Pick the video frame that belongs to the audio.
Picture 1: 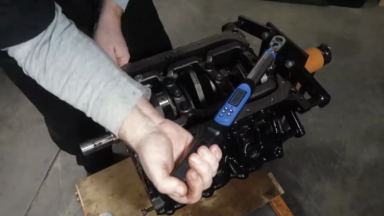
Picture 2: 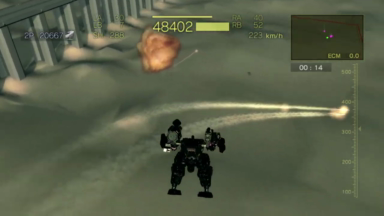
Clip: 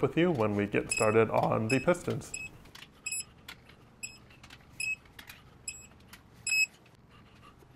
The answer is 1